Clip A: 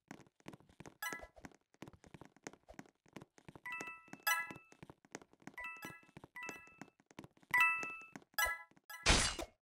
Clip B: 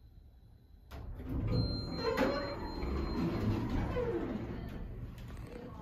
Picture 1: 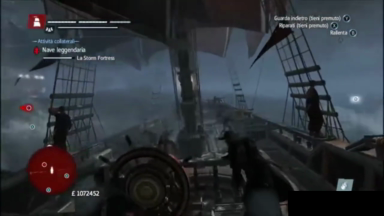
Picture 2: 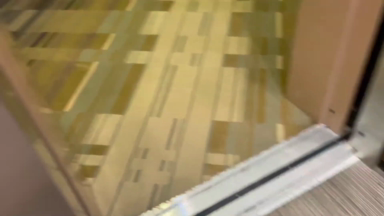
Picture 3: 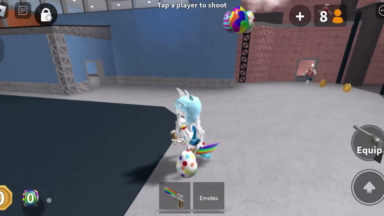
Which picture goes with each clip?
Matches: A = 3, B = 2